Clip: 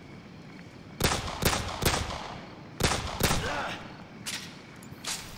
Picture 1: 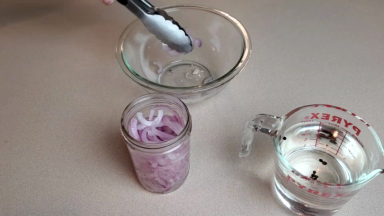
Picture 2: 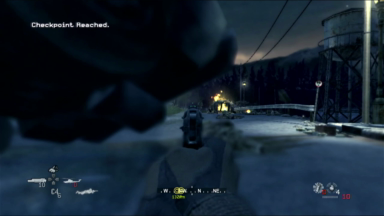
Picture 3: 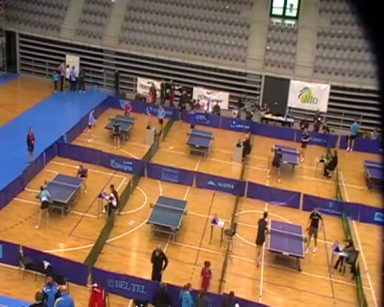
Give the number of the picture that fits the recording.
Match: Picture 2